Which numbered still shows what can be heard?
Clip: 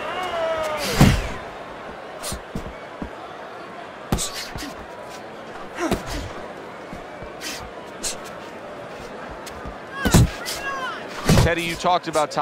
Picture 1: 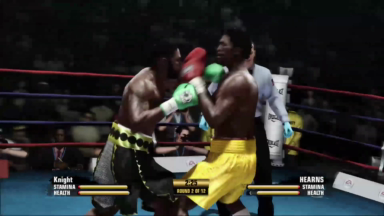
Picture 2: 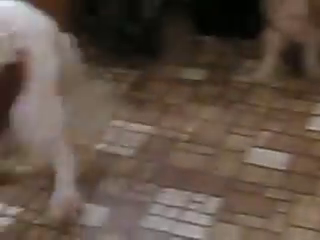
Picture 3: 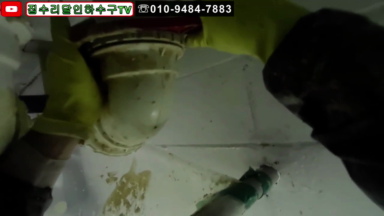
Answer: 1